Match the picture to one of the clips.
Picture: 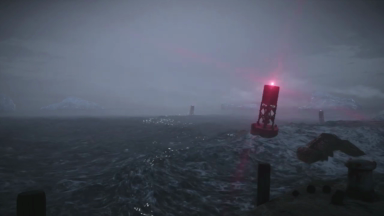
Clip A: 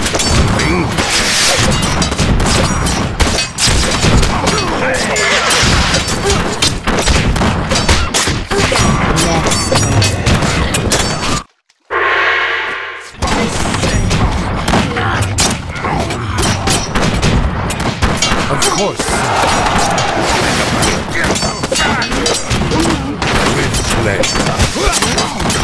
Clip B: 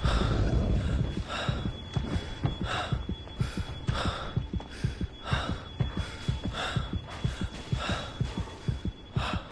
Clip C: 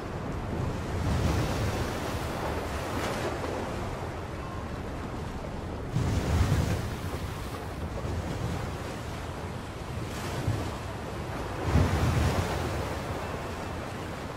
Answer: C